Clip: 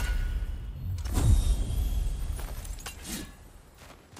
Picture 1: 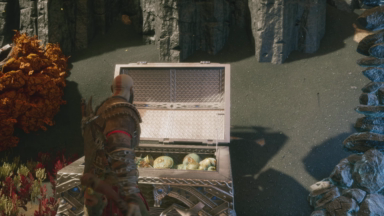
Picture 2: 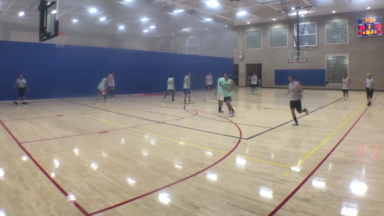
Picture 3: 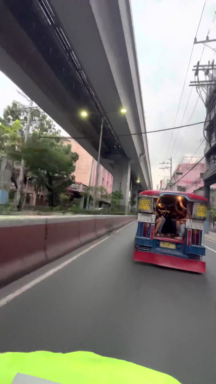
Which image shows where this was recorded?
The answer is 1